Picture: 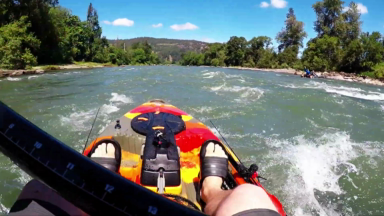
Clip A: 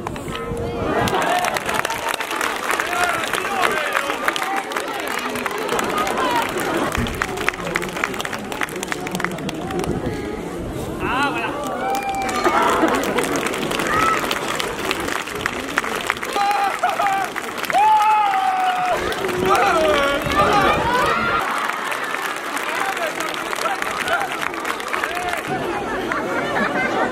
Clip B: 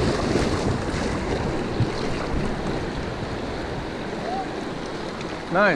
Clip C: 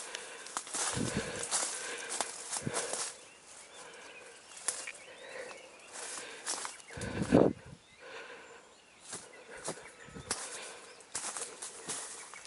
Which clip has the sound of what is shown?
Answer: B